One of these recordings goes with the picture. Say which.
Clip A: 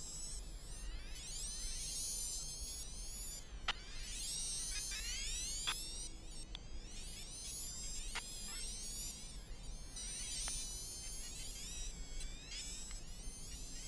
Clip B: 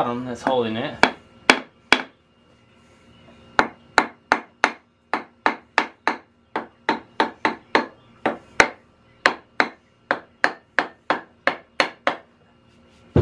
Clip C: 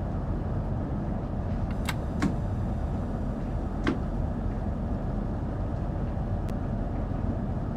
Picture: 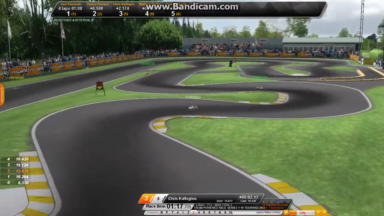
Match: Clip A